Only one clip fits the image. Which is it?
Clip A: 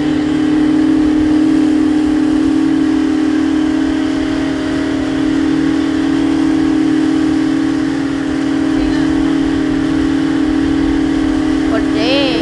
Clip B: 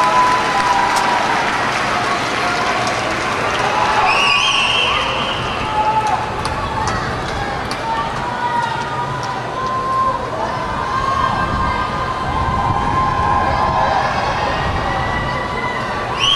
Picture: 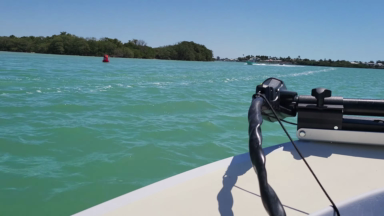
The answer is A